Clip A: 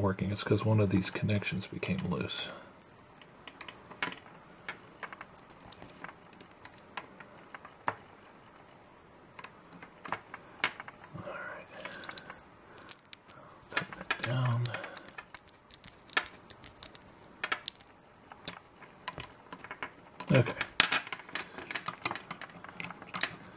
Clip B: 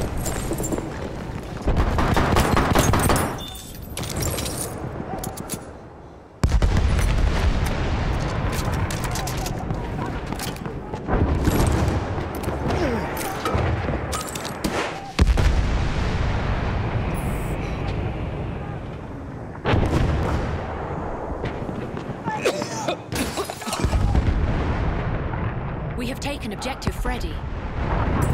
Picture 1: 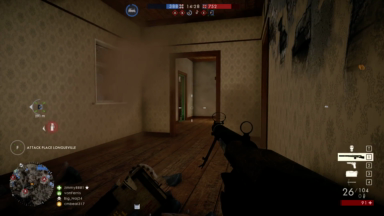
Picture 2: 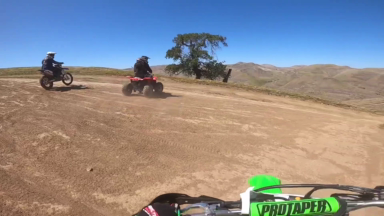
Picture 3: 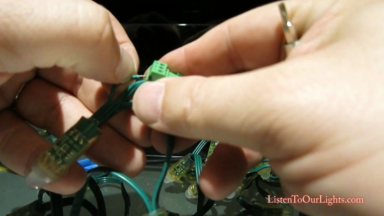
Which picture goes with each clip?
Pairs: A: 3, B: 1